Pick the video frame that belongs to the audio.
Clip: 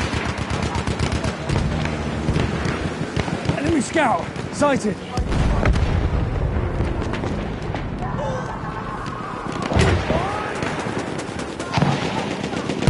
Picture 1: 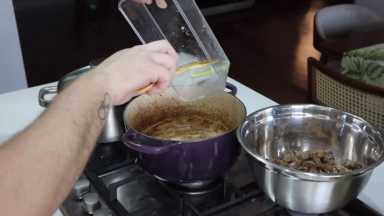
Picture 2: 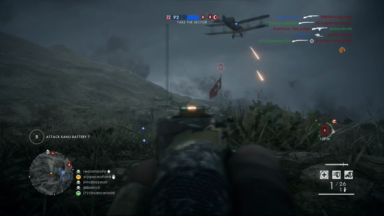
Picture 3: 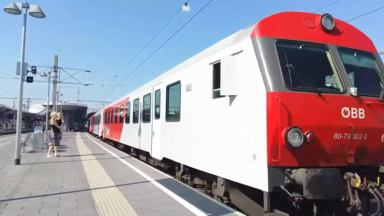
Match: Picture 2